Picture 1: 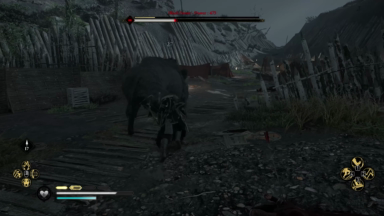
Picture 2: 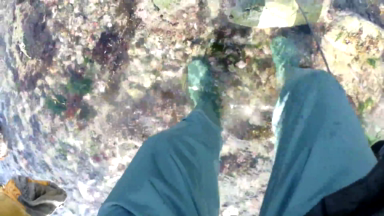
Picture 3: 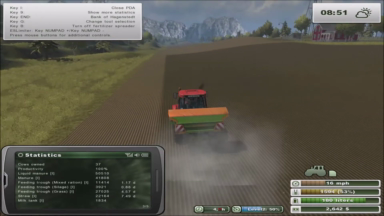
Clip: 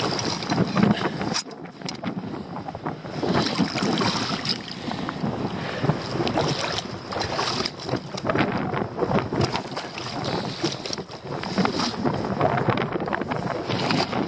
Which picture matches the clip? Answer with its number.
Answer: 2